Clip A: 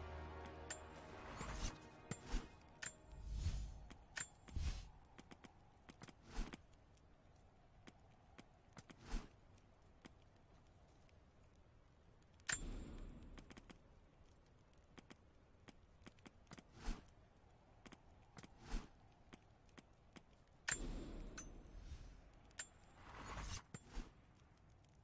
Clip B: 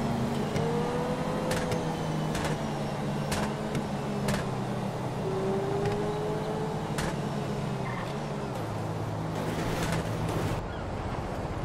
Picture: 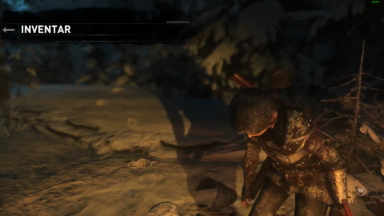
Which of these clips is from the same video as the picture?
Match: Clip A